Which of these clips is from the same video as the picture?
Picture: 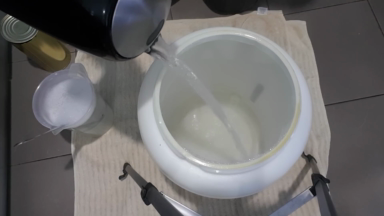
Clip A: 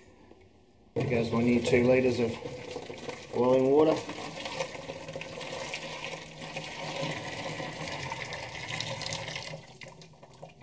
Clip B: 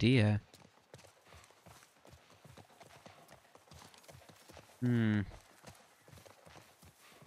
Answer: A